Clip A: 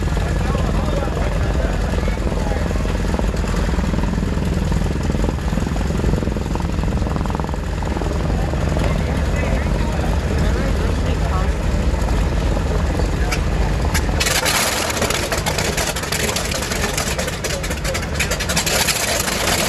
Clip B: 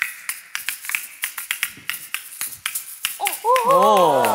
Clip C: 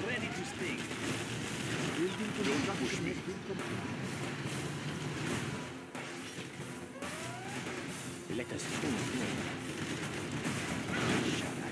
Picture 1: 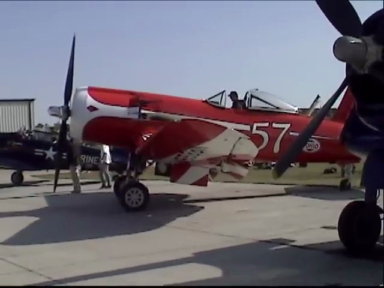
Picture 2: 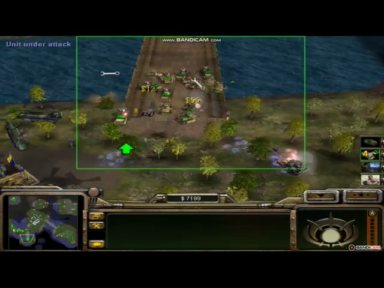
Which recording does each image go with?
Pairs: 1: A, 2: C